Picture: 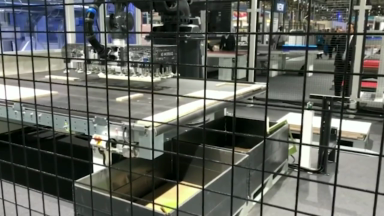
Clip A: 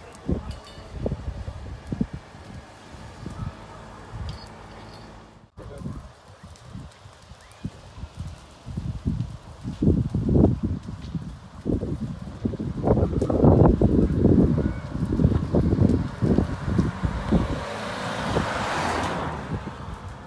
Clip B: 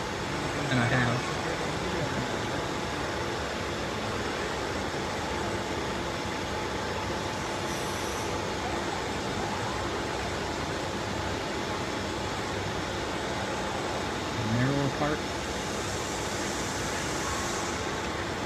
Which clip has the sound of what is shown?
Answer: B